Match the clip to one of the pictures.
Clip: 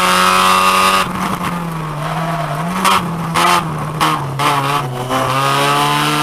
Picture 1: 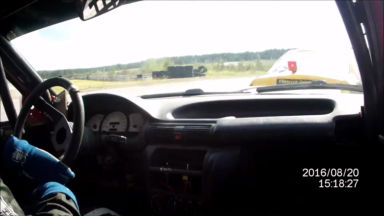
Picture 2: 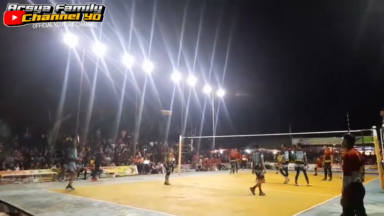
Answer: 1